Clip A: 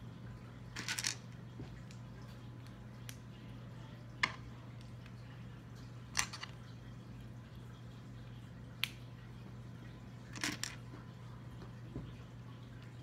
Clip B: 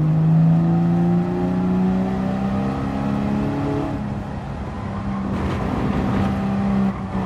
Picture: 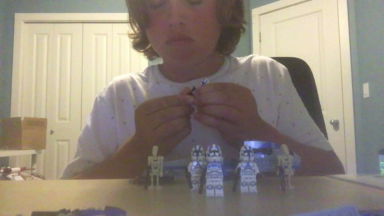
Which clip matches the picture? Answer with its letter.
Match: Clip A